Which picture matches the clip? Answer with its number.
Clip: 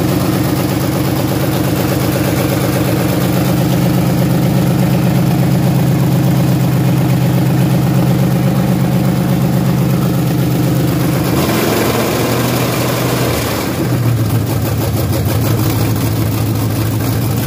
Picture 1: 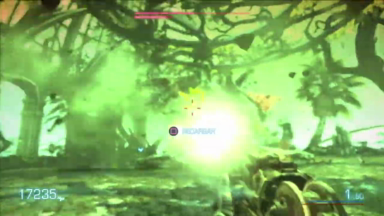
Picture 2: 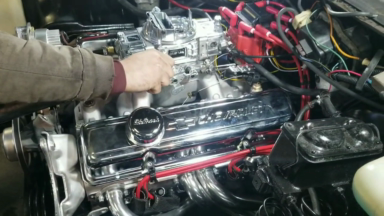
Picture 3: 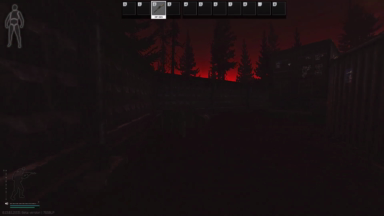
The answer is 2